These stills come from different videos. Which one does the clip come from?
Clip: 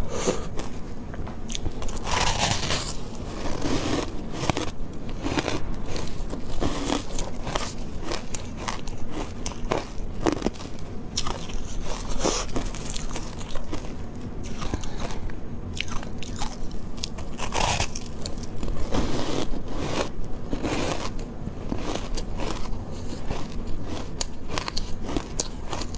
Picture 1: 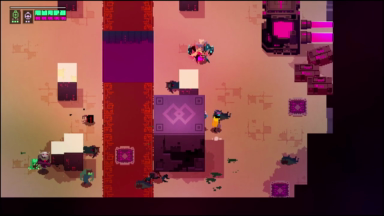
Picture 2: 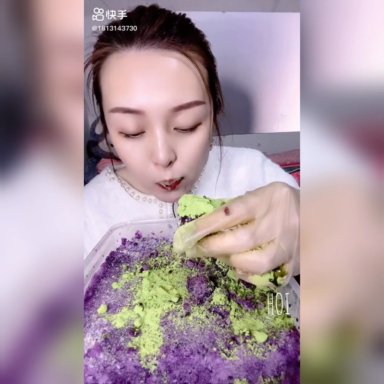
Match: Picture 2